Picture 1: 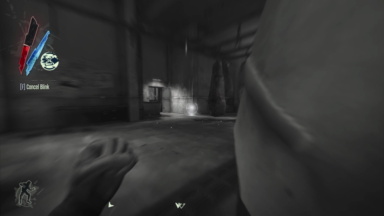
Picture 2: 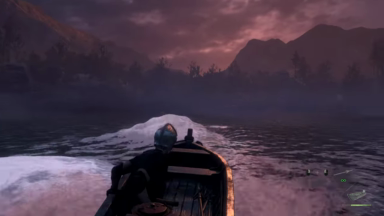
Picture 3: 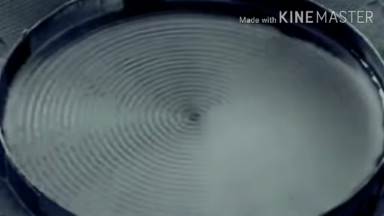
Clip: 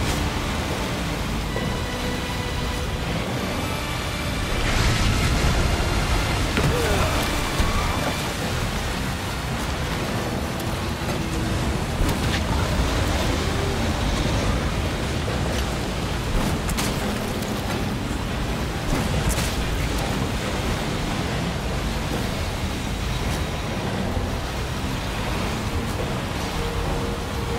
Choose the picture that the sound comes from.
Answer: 2